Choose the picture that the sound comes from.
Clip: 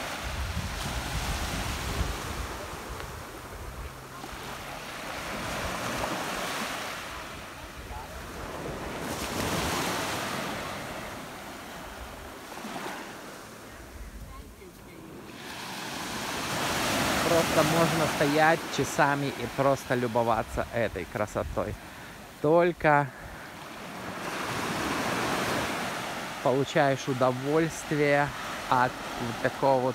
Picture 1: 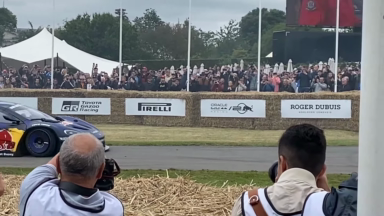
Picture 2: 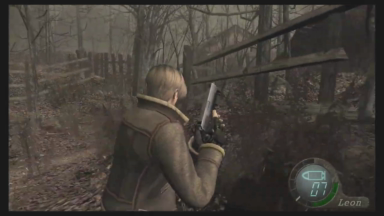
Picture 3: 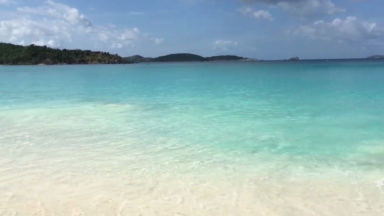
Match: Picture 3